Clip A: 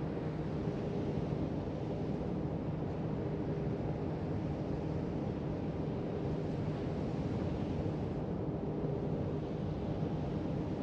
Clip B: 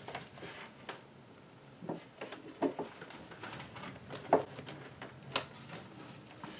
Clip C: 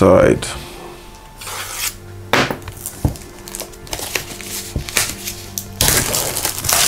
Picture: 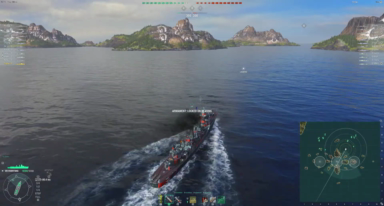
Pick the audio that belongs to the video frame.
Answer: A